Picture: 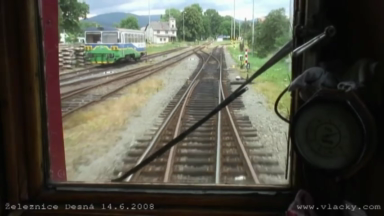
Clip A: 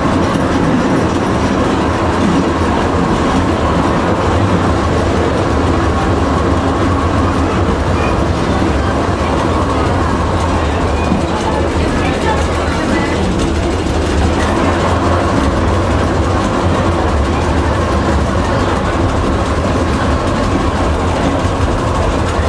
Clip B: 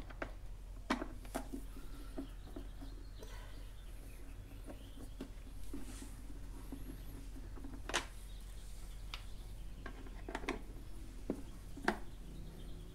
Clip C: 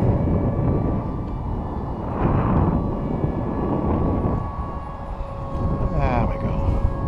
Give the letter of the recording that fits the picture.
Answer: A